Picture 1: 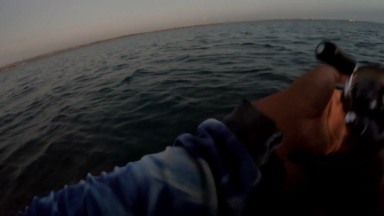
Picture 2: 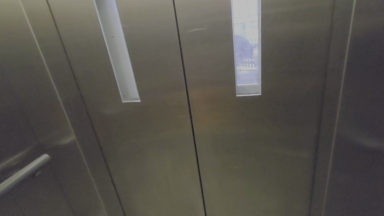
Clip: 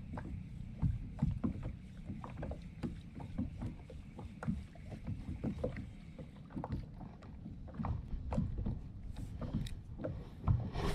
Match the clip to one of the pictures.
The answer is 1